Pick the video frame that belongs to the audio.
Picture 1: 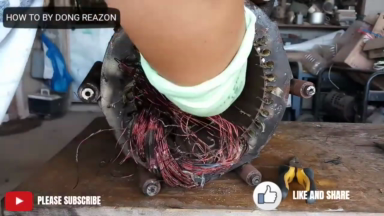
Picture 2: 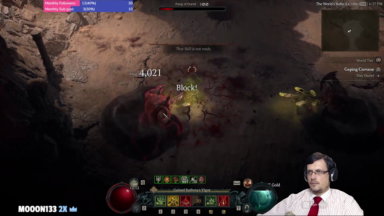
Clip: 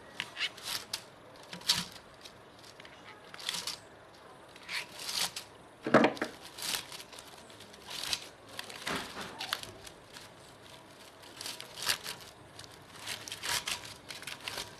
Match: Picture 1